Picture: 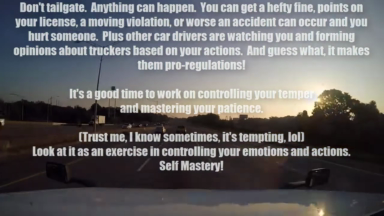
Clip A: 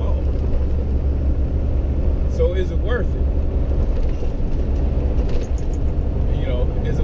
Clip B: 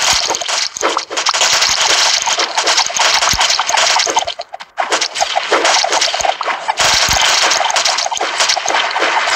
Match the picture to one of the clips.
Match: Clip A